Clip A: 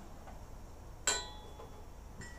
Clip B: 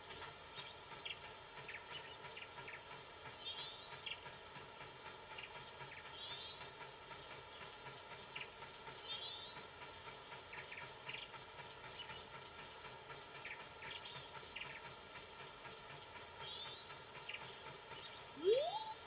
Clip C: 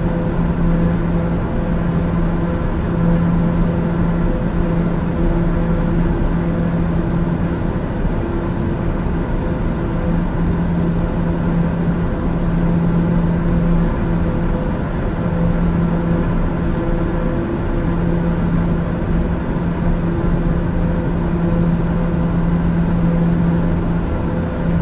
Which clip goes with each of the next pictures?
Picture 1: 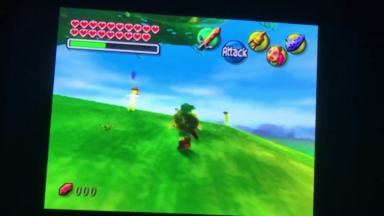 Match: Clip B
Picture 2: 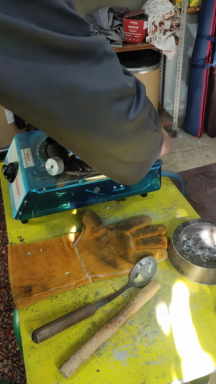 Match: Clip A